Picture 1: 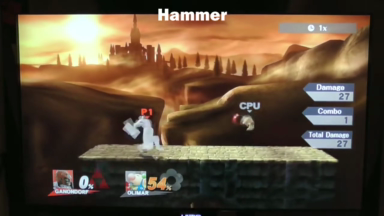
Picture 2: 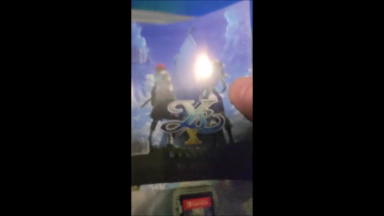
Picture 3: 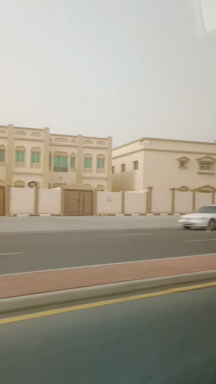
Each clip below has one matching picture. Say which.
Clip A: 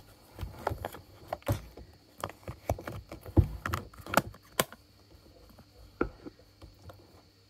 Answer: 2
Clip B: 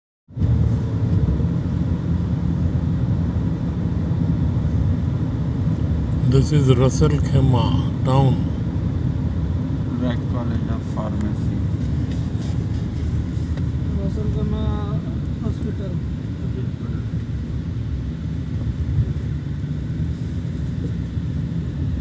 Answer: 3